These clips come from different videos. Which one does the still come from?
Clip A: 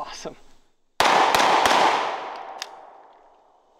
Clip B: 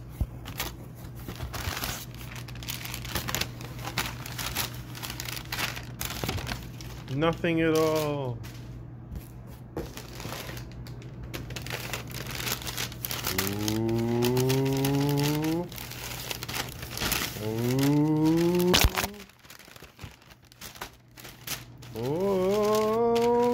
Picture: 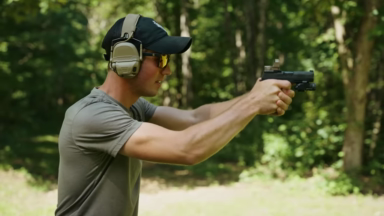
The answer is A